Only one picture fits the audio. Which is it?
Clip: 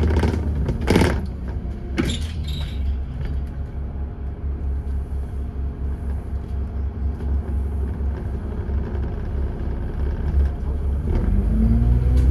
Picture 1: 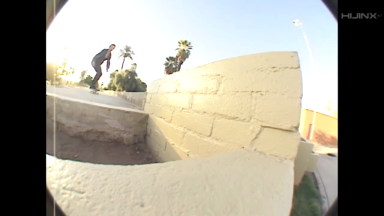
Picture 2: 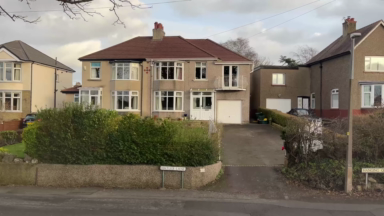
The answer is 2